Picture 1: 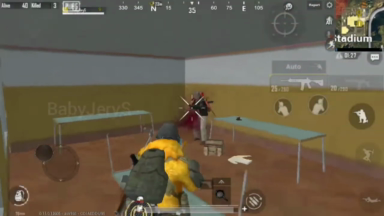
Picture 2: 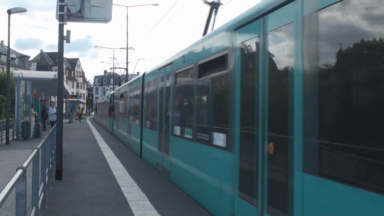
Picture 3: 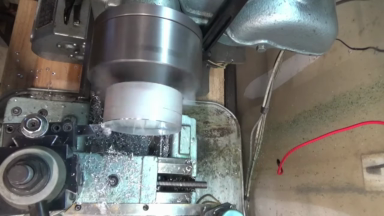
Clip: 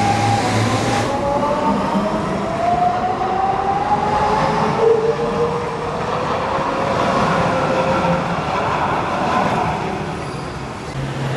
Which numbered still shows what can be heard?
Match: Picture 2